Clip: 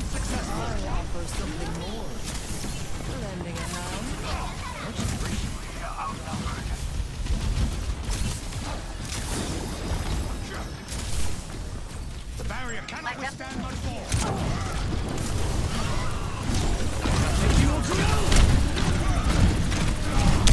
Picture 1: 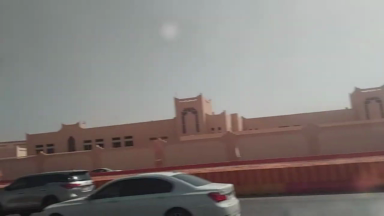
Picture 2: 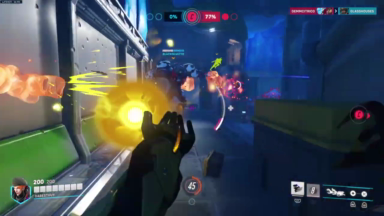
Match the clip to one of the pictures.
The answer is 2